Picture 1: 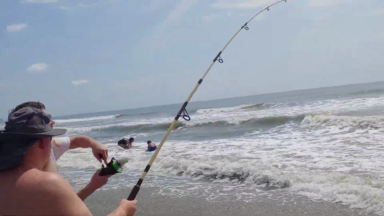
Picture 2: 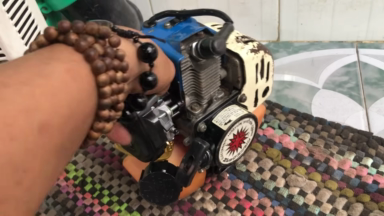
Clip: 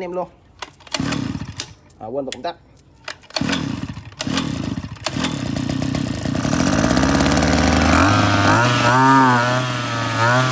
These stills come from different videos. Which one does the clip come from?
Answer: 2